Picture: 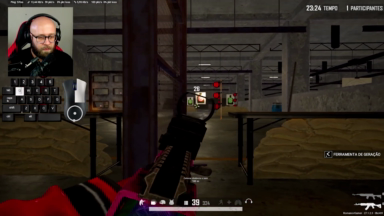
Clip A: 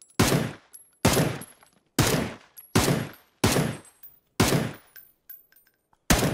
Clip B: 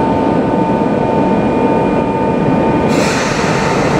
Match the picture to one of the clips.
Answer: A